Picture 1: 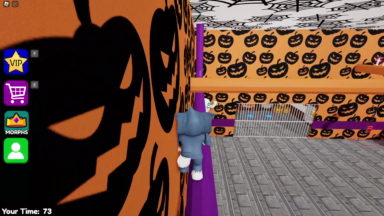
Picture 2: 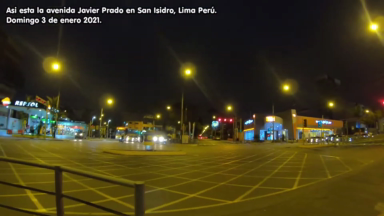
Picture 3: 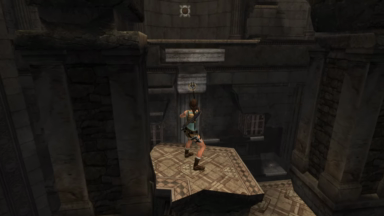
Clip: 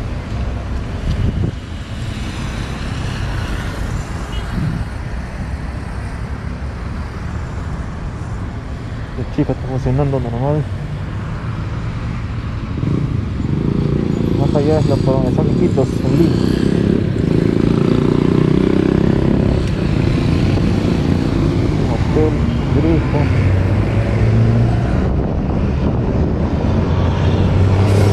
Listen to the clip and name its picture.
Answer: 2